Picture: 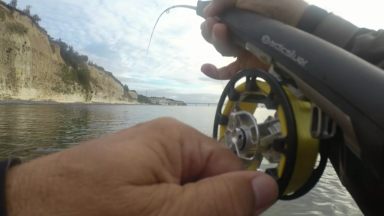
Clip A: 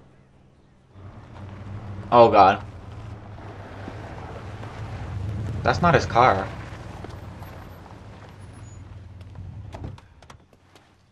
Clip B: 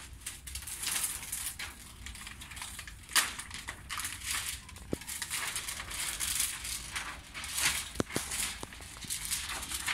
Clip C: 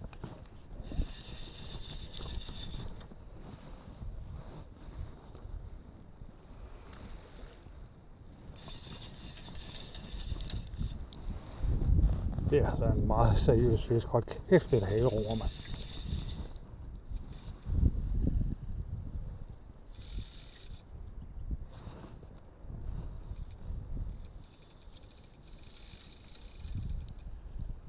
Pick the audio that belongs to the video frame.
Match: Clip C